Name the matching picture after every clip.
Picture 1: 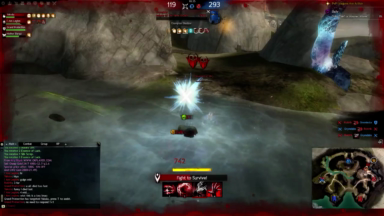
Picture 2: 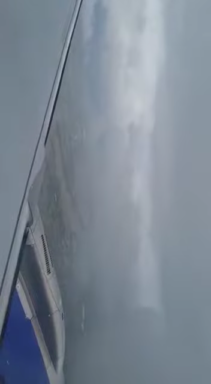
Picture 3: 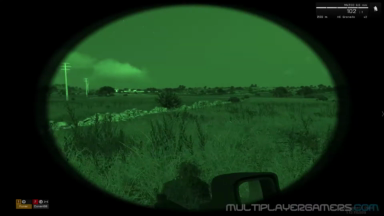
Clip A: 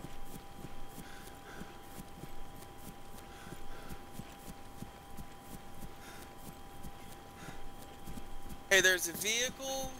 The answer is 3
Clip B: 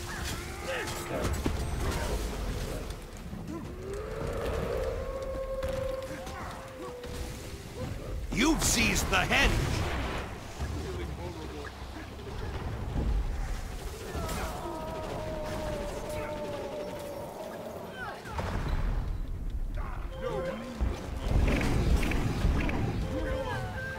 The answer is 1